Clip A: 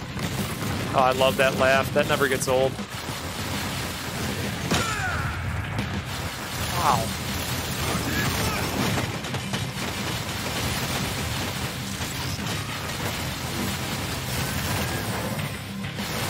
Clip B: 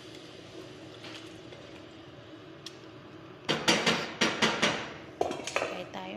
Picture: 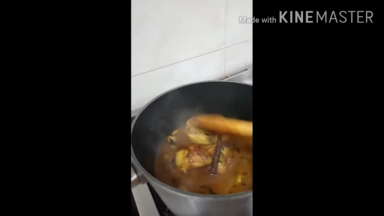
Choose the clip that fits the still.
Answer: B